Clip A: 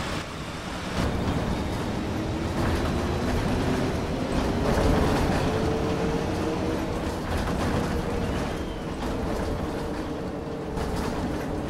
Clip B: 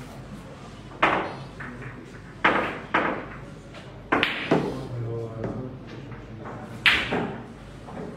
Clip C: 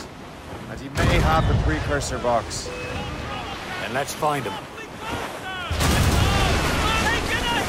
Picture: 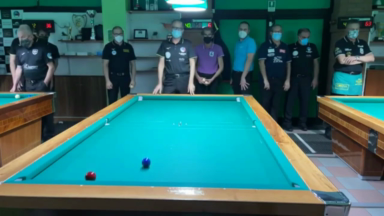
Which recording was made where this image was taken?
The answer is B